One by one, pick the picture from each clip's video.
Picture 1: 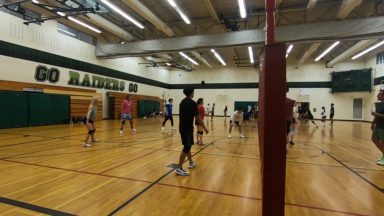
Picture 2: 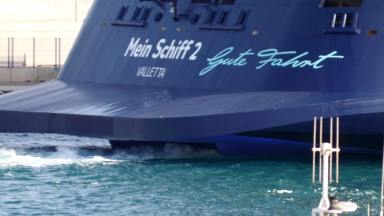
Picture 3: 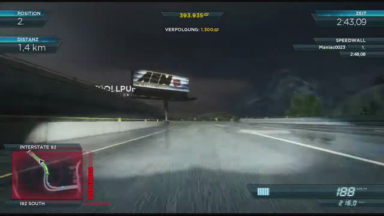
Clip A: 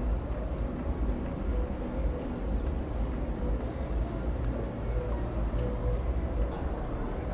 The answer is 2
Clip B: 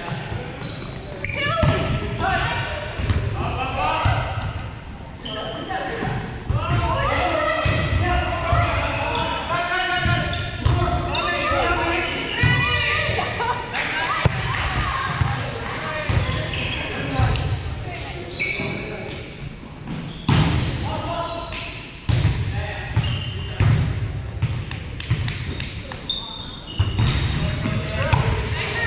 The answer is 1